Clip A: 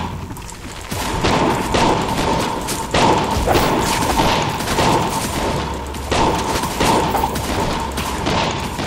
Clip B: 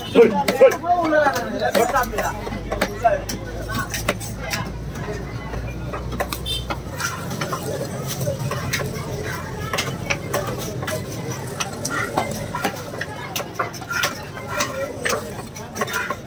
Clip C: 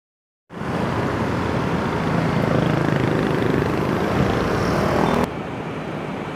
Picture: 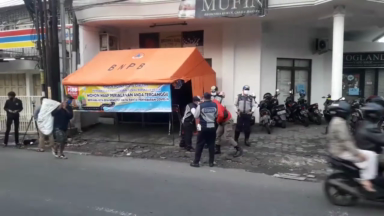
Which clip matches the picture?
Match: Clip C